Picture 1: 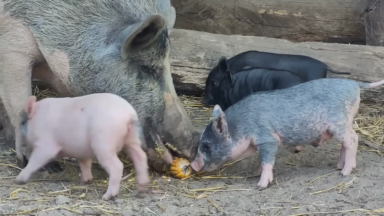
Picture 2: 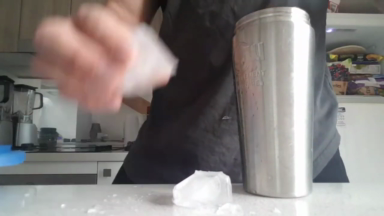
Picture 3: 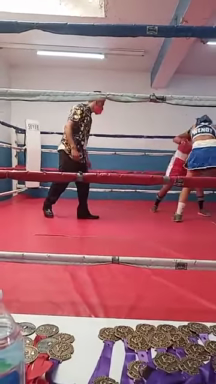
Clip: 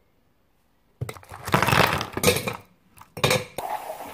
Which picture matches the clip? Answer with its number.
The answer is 2